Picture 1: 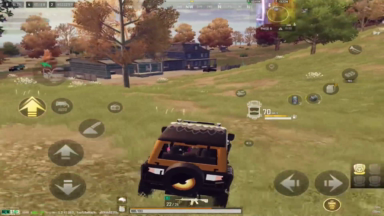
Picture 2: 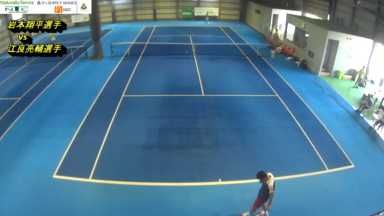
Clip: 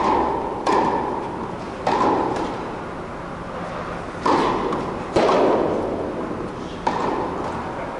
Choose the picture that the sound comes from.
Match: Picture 2